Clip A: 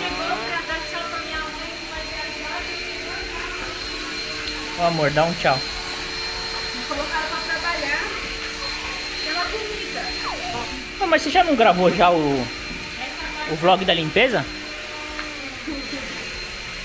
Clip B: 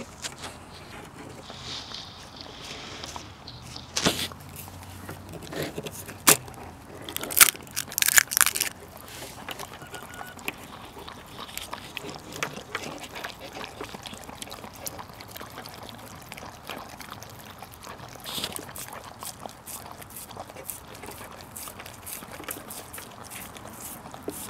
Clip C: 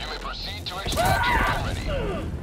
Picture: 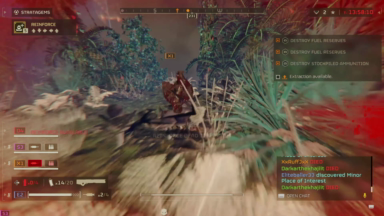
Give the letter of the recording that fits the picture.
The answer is C